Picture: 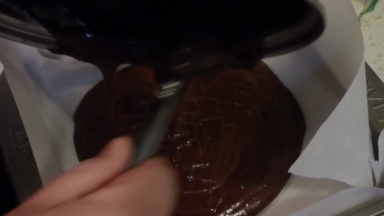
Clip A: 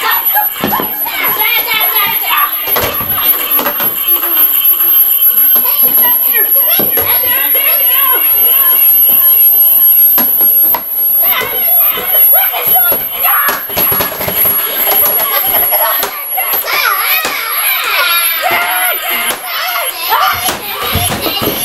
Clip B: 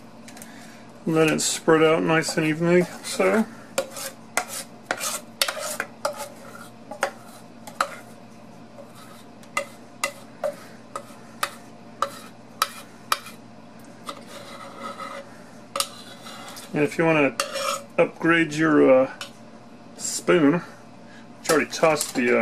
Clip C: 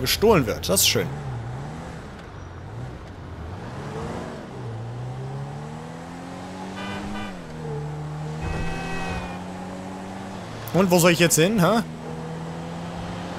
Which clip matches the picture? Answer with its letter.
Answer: B